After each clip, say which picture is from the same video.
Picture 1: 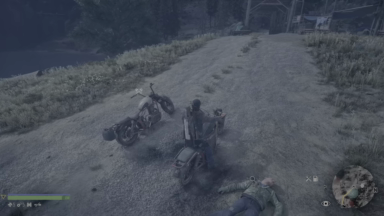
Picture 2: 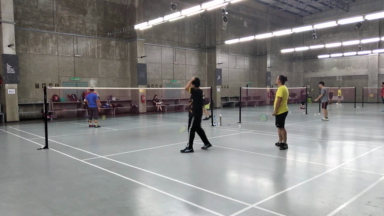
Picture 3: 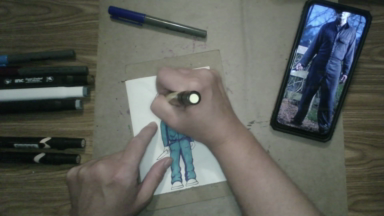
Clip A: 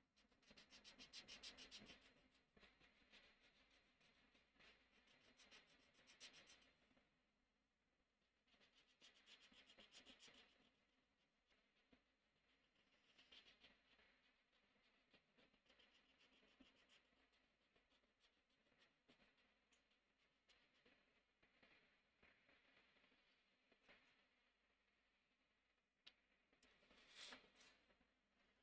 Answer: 3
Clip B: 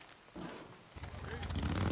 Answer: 1